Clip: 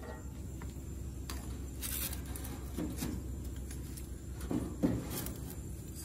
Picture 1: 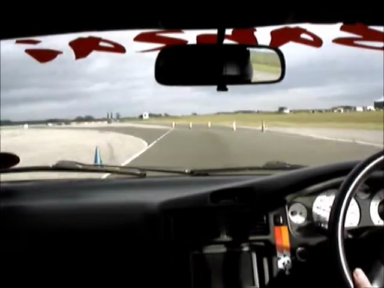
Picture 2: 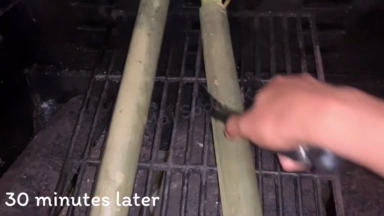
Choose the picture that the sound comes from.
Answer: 2